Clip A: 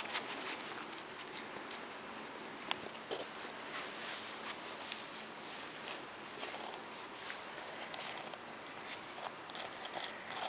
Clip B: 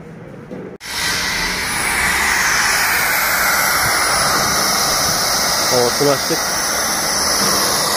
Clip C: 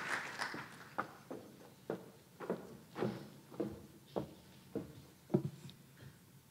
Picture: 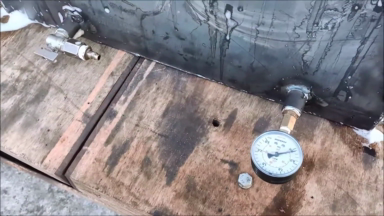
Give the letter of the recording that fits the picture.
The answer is B